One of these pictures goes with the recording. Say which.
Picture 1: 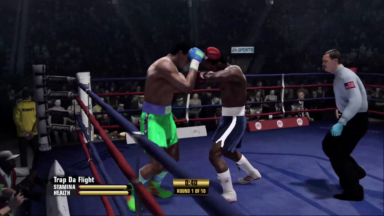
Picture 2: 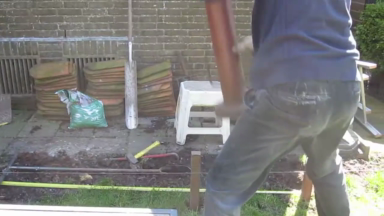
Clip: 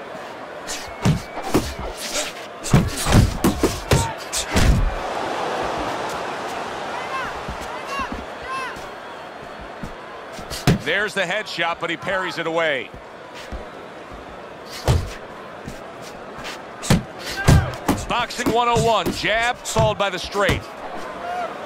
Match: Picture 1